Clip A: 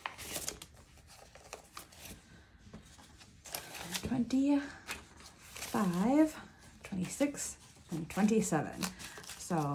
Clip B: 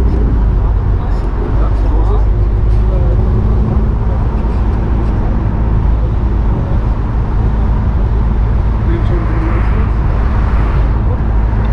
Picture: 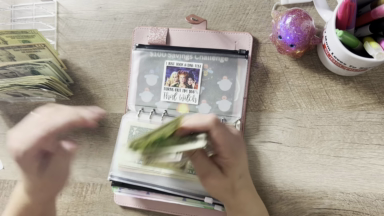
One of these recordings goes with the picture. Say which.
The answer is A